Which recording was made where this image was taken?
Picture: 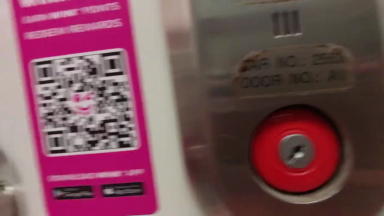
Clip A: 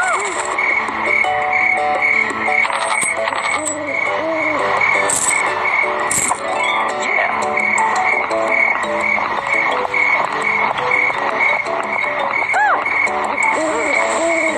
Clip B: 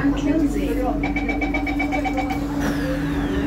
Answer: B